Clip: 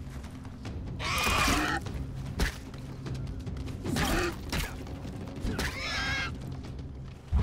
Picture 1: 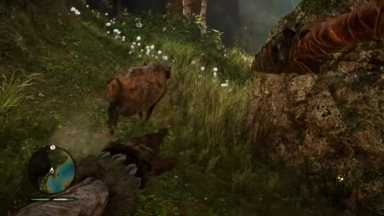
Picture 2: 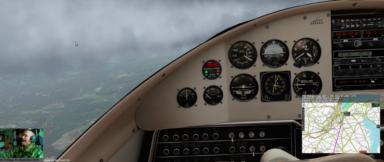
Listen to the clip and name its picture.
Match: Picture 1